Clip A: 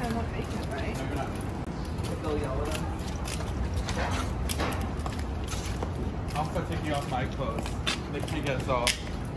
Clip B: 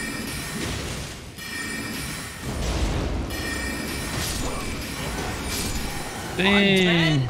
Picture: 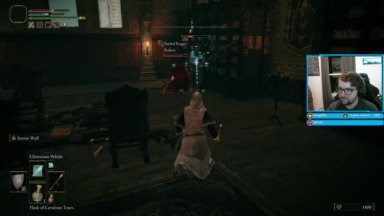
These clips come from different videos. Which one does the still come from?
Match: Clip B